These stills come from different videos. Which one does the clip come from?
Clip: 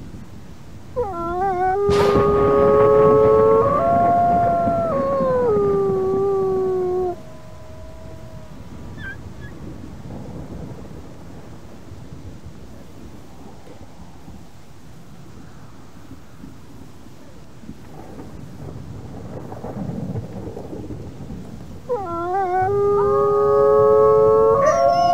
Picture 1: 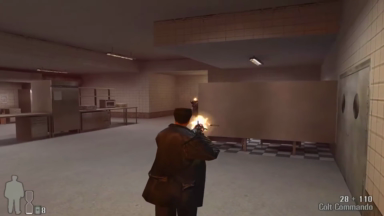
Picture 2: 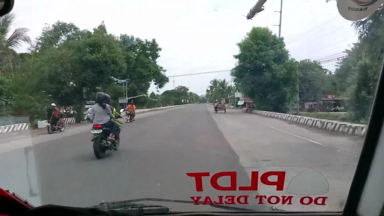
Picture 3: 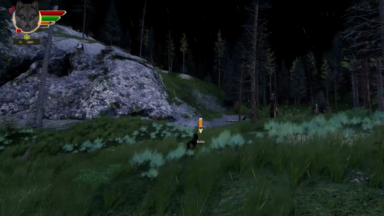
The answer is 3